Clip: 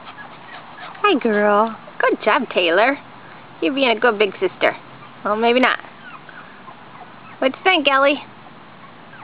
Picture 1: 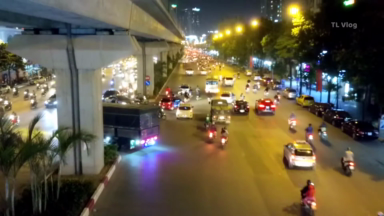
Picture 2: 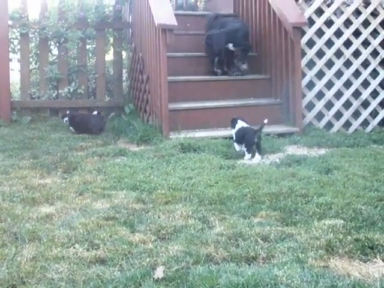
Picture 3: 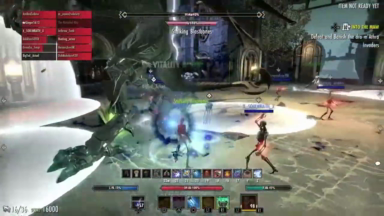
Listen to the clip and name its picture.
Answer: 2